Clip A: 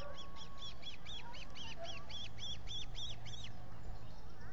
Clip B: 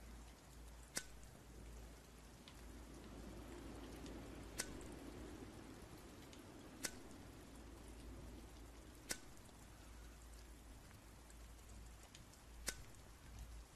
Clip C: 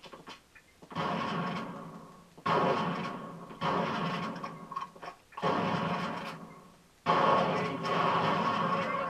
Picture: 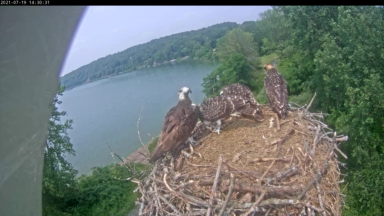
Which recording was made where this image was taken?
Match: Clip A